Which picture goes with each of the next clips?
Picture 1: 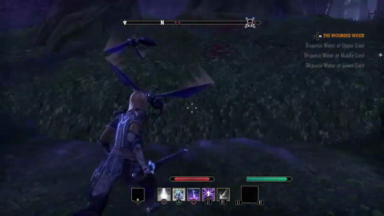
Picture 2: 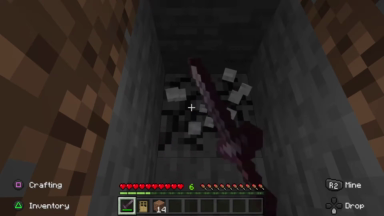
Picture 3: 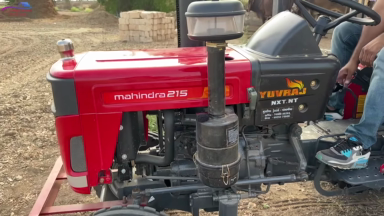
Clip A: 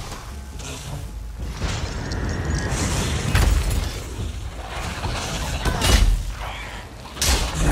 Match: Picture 1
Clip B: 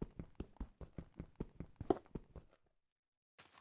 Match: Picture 2